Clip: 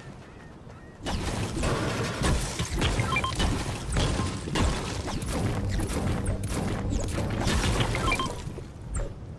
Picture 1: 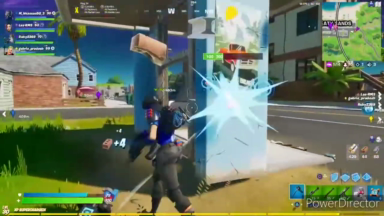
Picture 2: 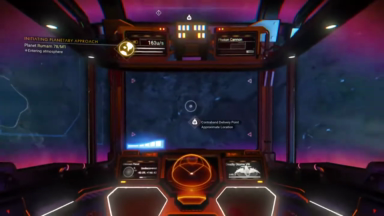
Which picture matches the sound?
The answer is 1